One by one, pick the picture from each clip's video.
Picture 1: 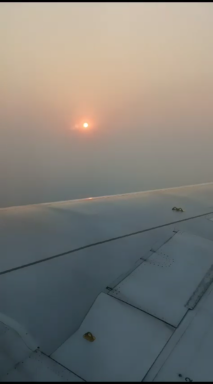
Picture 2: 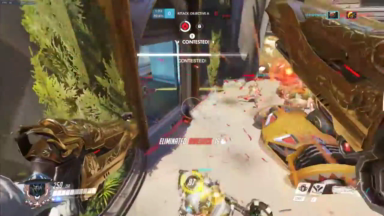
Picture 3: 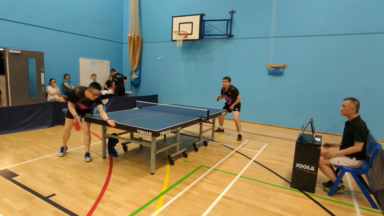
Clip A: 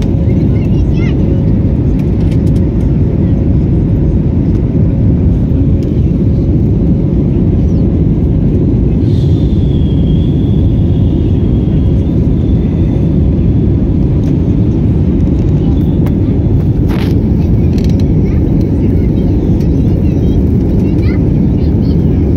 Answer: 1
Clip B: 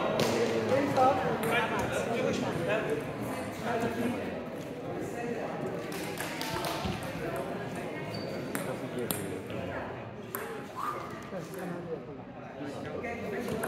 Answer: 3